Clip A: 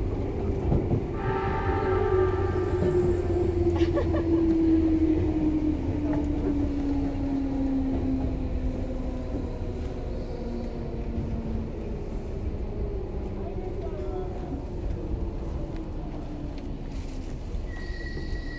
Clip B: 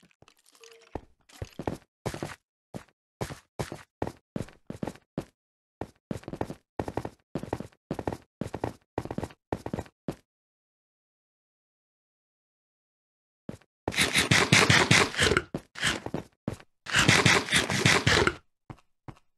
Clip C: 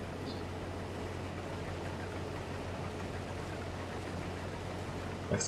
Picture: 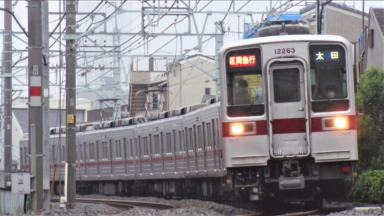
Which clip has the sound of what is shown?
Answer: A